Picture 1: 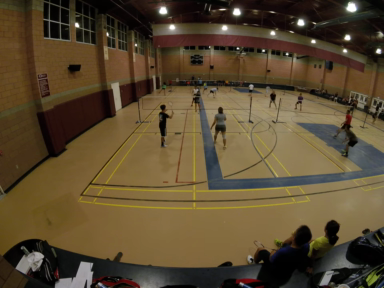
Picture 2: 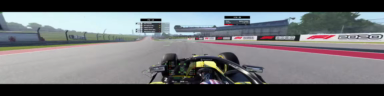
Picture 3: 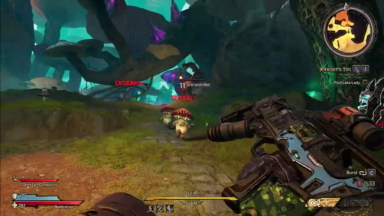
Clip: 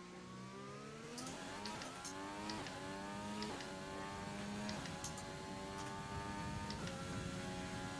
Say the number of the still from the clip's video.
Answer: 2